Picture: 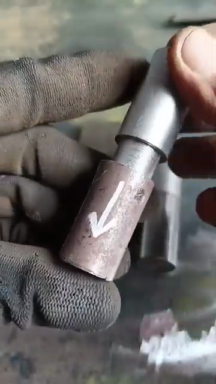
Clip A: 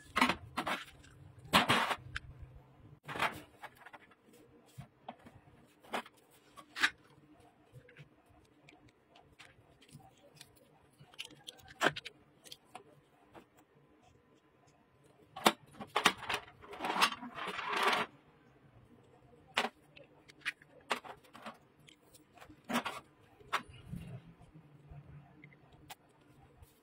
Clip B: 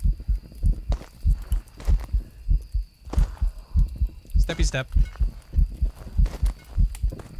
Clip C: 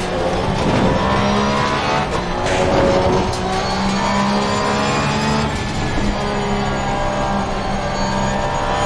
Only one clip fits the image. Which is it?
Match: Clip A